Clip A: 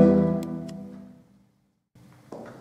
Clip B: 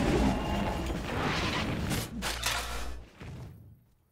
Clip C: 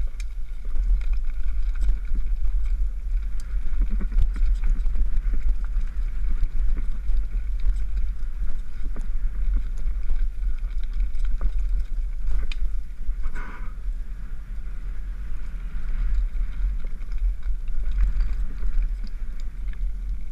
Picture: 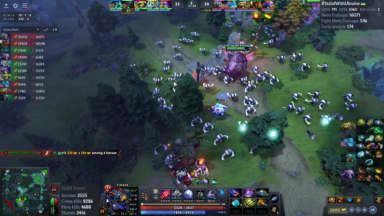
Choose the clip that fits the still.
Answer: B